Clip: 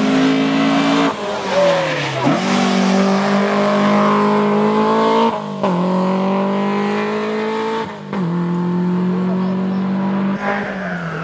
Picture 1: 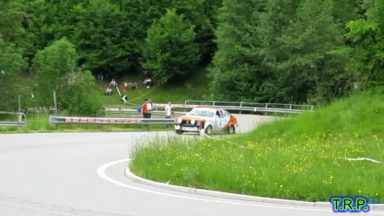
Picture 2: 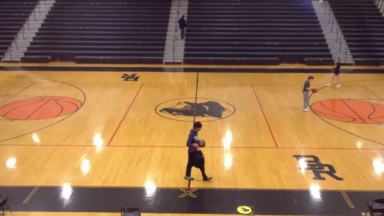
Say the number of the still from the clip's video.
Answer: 1